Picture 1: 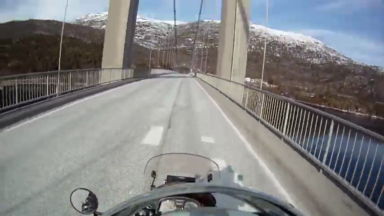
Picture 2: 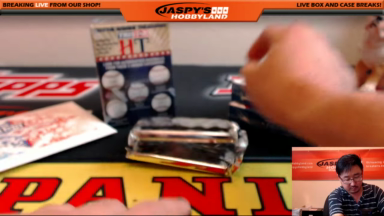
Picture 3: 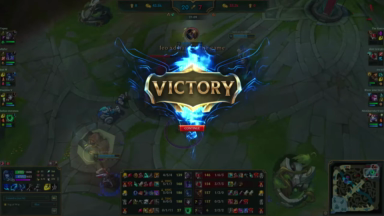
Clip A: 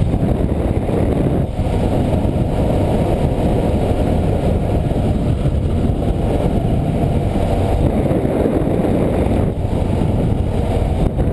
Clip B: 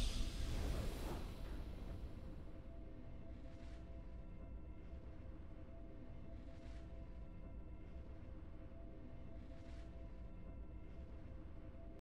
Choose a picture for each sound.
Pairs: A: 1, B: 3